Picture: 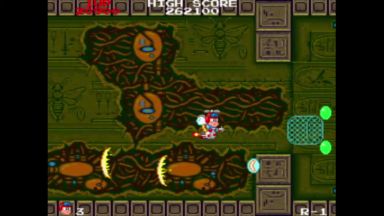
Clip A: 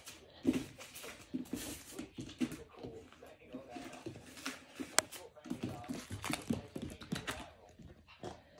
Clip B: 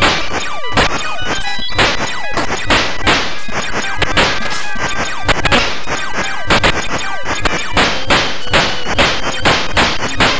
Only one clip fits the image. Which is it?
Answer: B